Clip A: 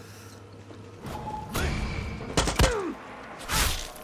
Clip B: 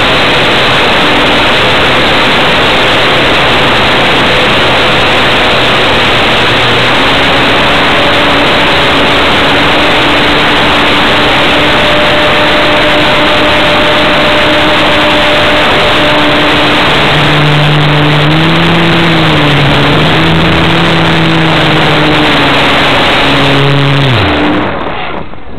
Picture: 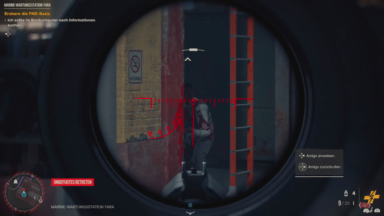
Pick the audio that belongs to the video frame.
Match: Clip A